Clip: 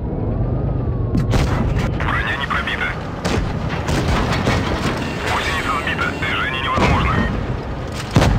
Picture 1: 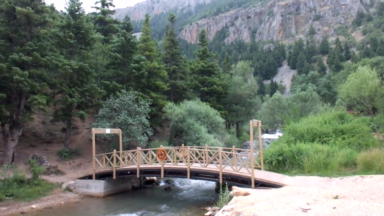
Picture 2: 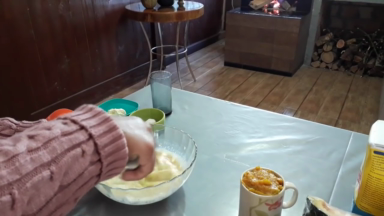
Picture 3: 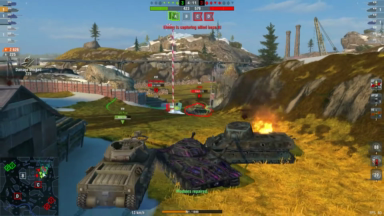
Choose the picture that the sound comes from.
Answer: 3